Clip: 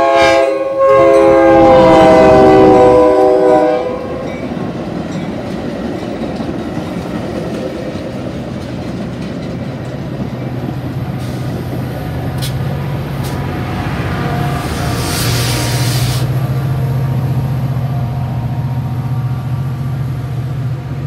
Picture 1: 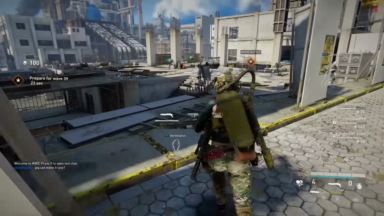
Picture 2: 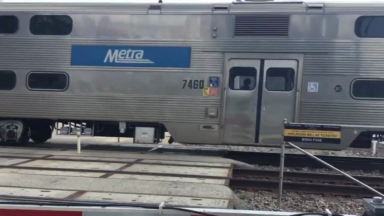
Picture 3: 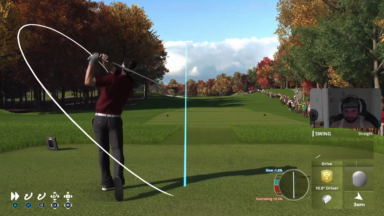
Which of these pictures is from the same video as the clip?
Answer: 2